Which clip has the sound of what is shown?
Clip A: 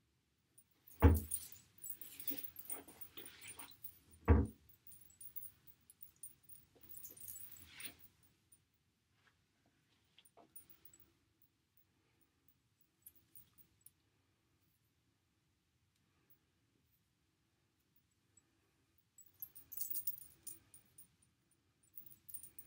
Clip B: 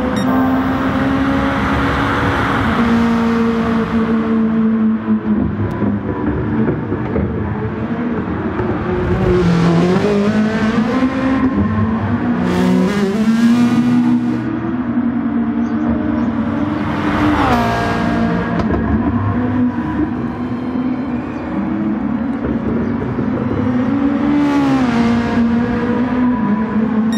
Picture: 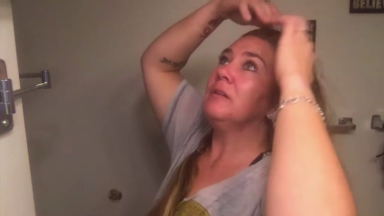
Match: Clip A